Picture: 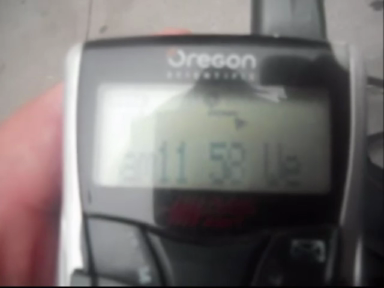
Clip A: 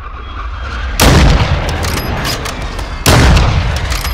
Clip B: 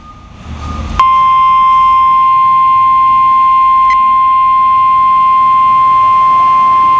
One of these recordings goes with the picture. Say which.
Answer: B